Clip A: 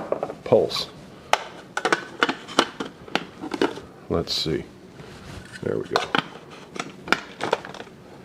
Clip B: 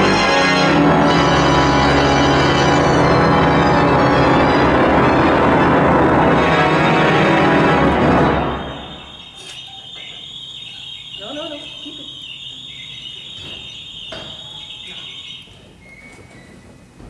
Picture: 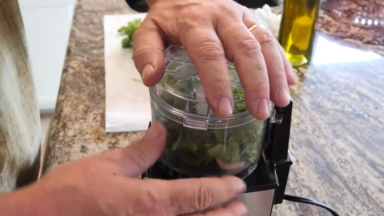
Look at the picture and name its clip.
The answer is A